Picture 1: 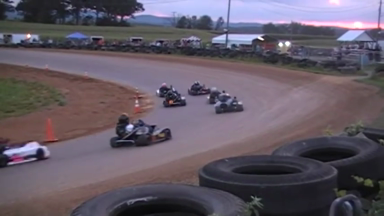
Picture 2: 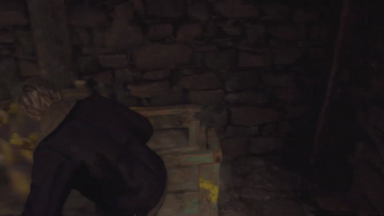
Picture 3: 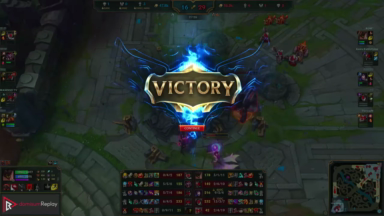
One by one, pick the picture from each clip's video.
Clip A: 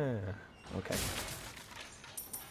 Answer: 2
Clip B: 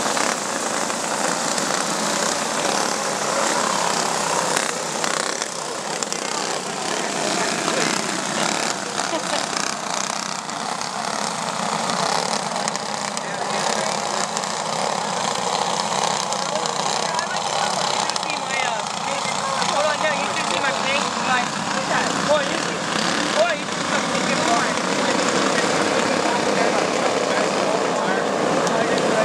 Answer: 1